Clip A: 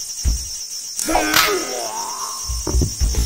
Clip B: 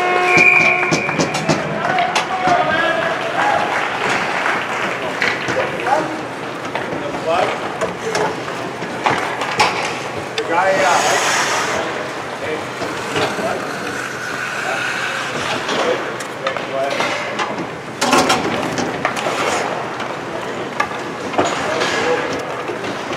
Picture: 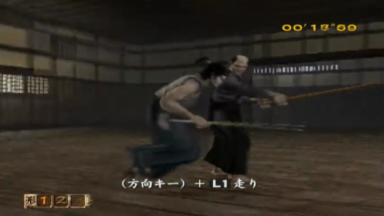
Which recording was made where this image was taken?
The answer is A